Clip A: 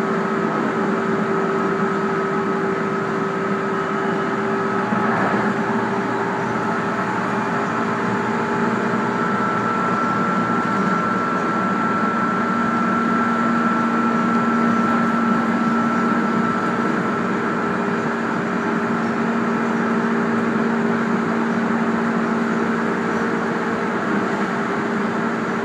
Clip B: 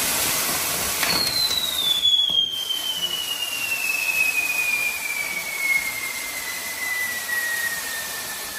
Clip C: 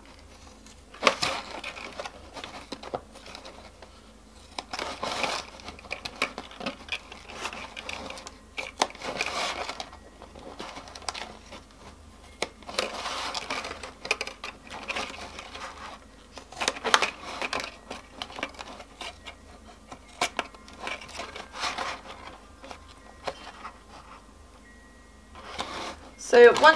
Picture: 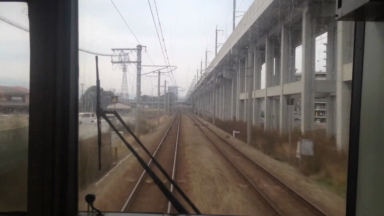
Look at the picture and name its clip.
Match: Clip A